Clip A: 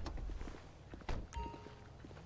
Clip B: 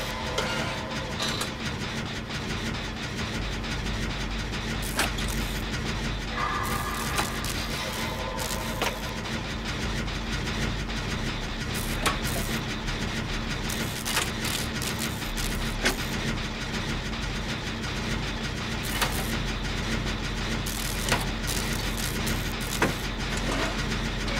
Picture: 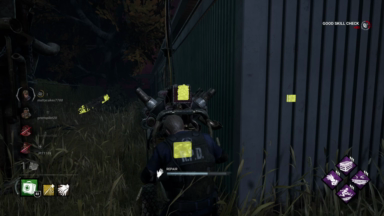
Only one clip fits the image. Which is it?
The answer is B